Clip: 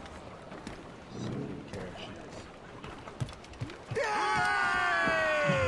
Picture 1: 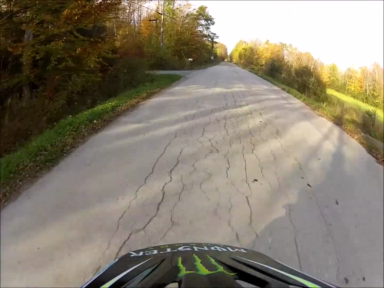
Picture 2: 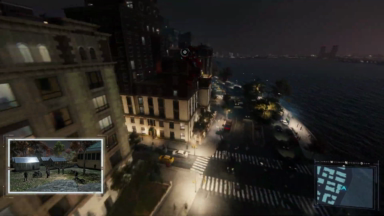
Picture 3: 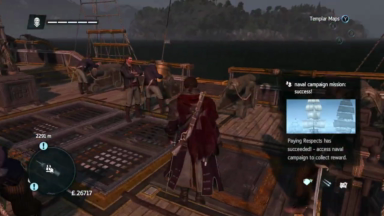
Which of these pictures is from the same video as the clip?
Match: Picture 3